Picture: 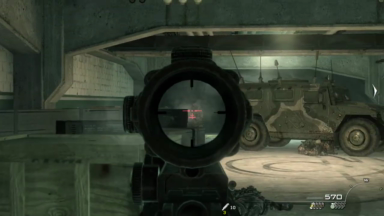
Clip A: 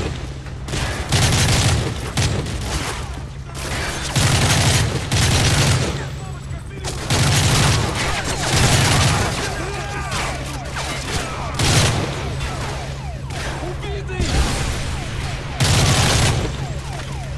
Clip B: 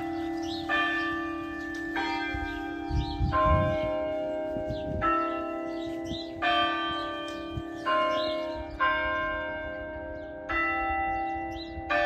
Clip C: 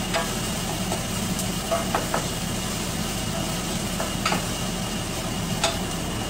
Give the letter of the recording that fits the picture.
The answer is A